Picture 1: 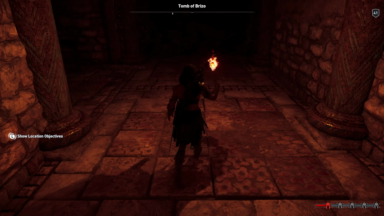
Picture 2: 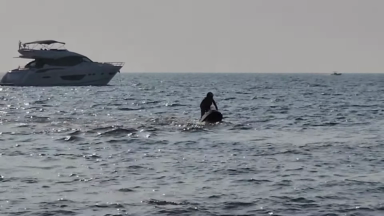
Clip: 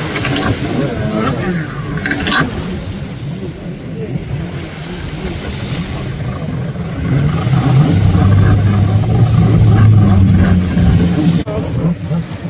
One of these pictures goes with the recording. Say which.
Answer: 2